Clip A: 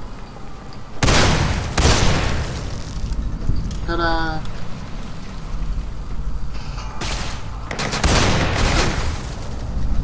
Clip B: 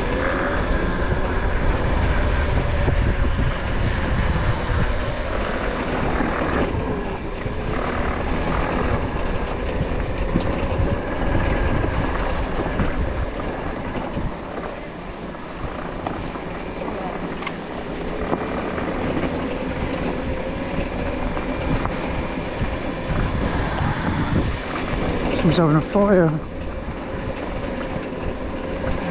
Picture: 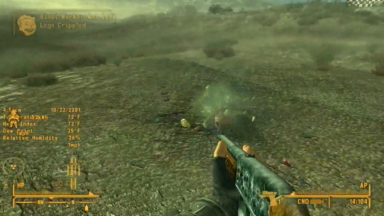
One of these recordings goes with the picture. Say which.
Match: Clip A